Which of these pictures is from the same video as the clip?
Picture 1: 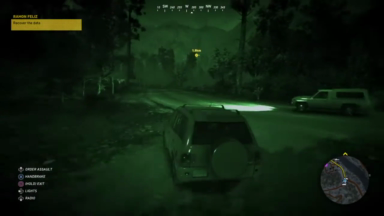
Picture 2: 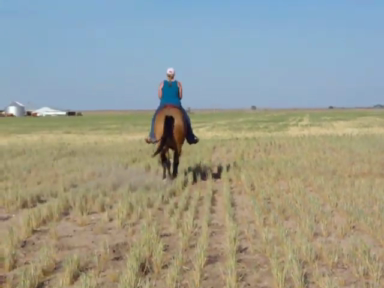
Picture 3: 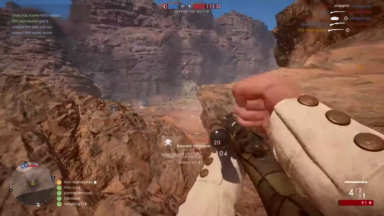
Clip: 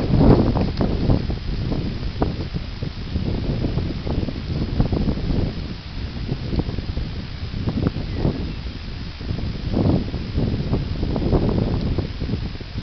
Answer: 2